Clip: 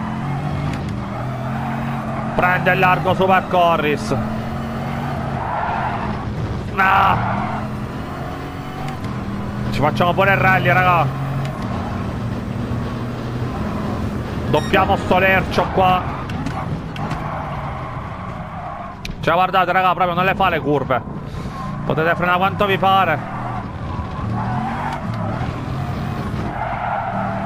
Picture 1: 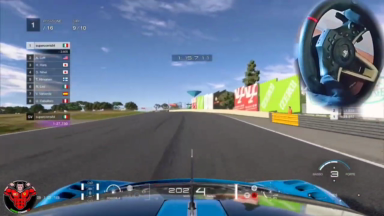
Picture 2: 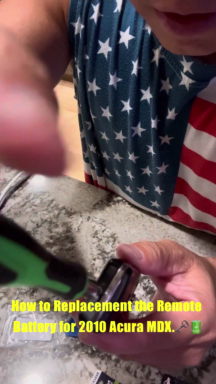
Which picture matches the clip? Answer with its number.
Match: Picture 1